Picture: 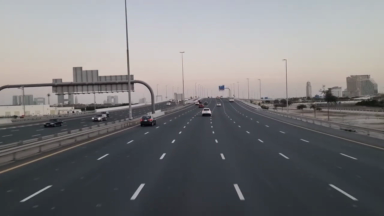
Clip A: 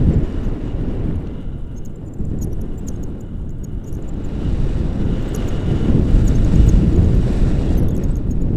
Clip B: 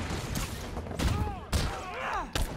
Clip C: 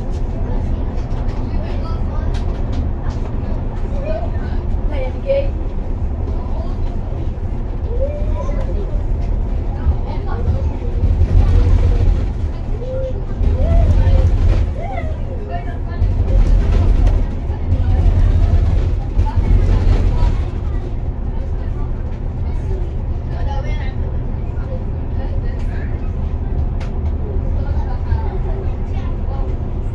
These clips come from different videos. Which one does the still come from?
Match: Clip C